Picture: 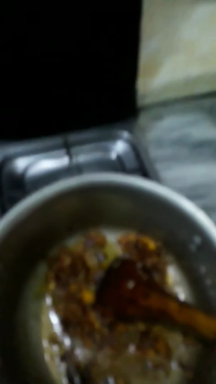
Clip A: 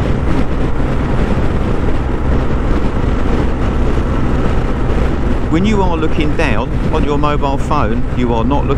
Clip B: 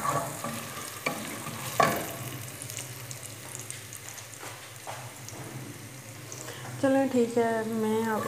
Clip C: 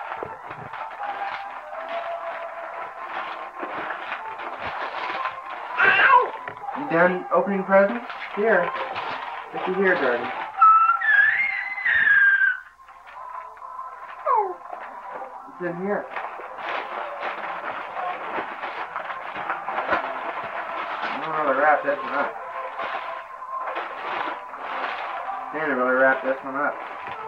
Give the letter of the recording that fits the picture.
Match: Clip B